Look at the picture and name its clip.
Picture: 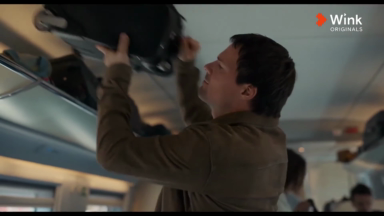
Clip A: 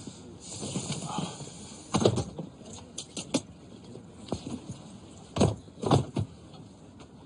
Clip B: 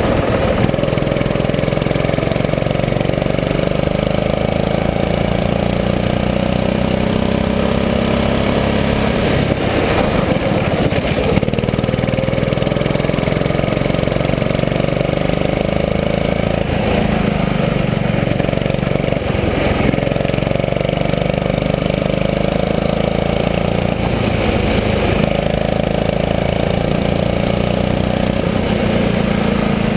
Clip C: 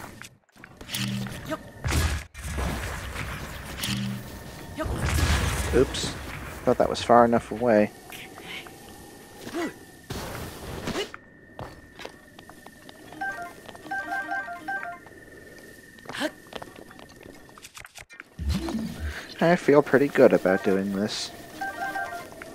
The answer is A